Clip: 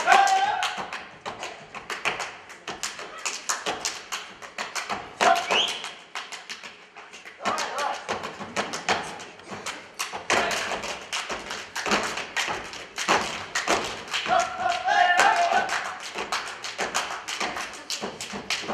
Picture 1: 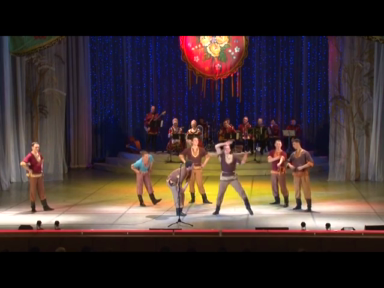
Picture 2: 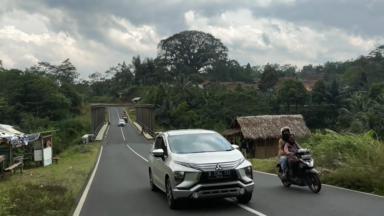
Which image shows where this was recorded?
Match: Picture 1